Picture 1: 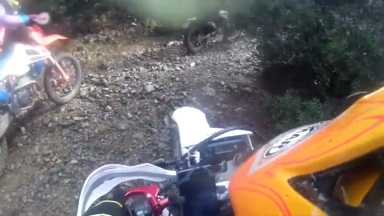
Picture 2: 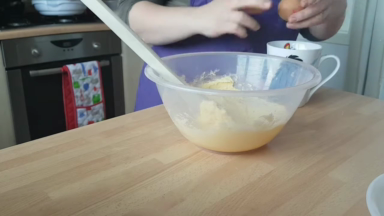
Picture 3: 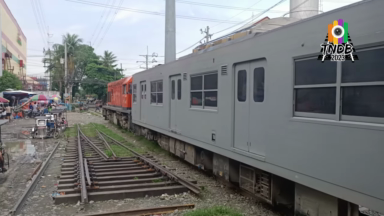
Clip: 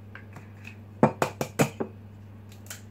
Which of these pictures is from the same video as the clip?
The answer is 2